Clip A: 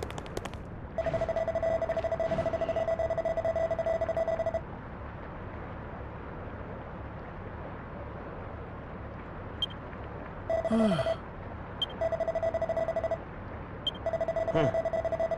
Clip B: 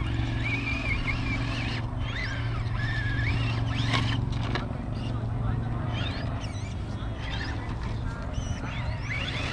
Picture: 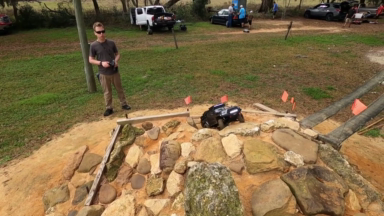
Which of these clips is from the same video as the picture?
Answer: B